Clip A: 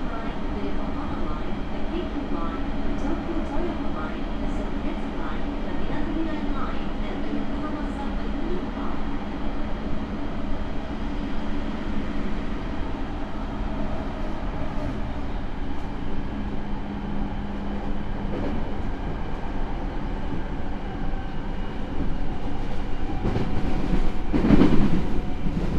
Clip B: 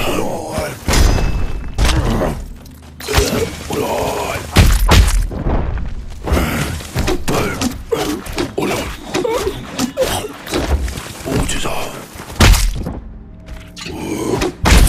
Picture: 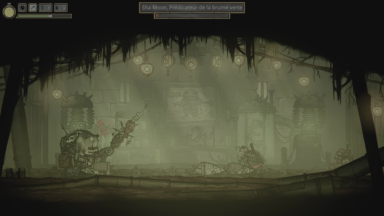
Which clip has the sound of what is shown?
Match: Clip B